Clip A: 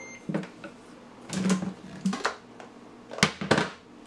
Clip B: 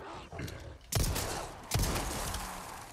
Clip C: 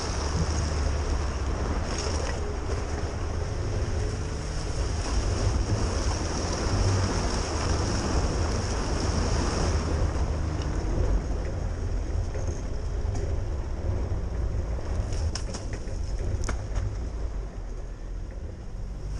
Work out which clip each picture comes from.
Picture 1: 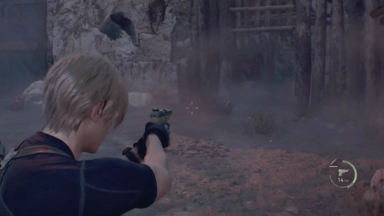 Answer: B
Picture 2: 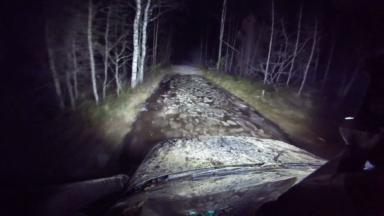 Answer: C